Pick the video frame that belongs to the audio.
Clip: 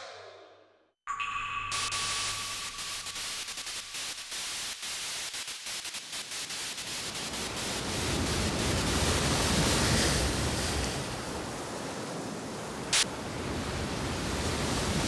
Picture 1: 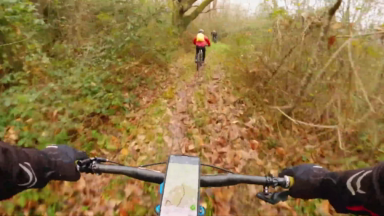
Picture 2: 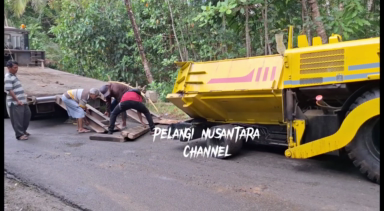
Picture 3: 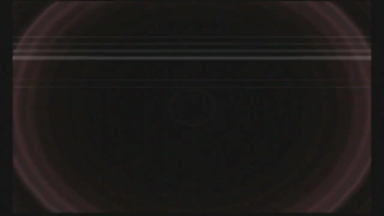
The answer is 3